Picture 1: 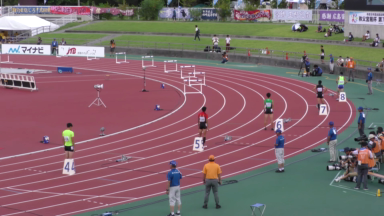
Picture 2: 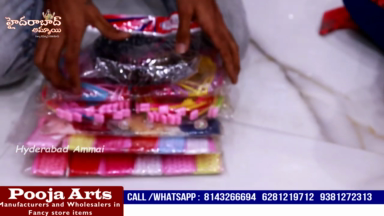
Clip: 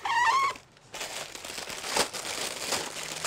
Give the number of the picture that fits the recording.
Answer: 2